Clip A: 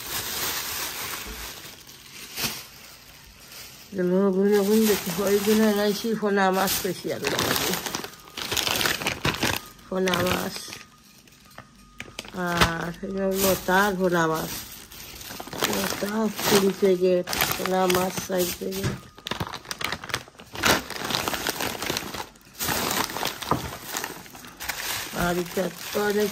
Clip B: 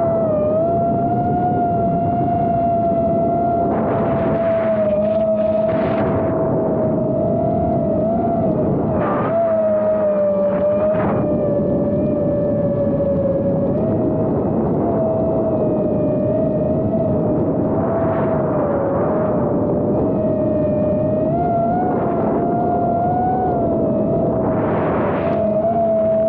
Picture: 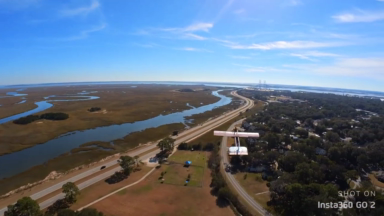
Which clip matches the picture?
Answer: B